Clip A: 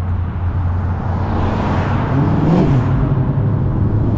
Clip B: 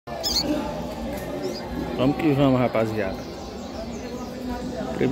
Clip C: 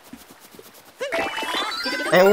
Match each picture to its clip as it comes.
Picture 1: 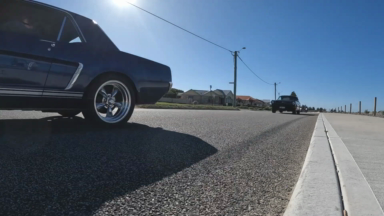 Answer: A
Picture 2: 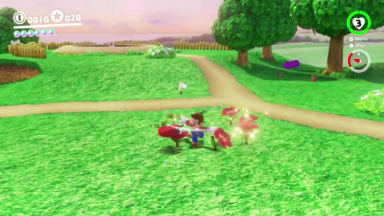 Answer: C